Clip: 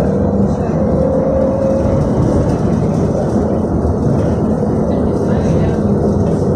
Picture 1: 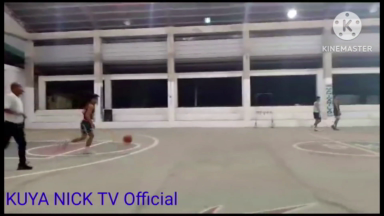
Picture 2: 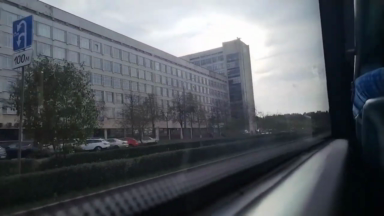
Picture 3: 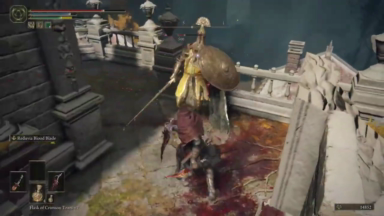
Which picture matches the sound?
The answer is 2